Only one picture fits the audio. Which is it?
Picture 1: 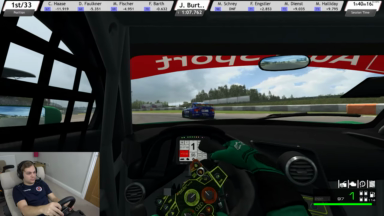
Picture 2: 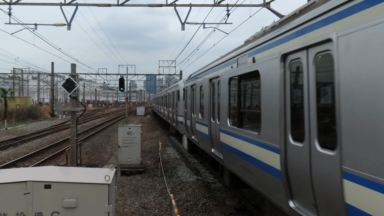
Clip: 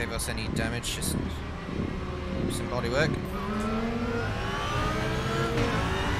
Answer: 1